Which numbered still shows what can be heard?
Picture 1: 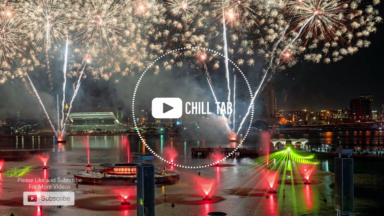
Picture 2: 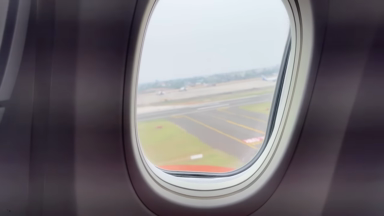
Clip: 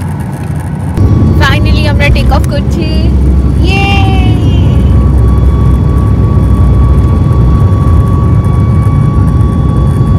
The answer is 2